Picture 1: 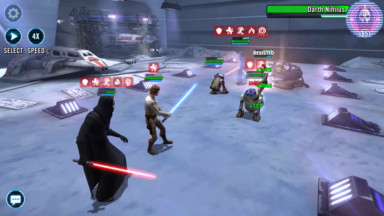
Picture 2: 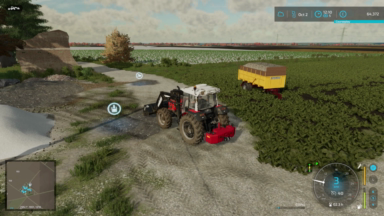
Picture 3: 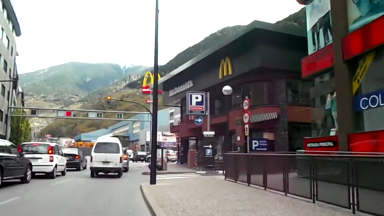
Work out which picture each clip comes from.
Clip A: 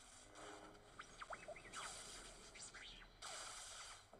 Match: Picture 1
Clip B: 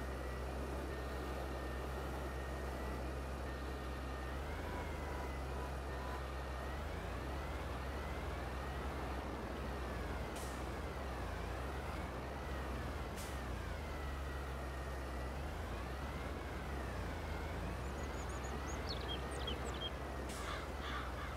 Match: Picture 2